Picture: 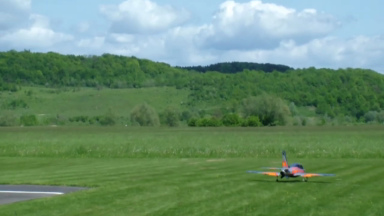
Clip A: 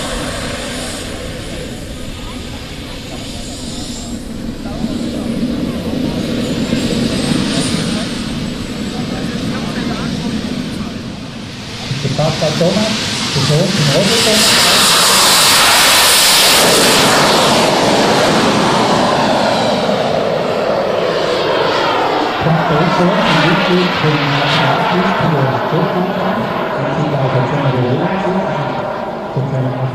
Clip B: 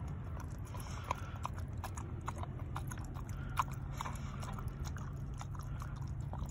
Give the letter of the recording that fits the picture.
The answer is A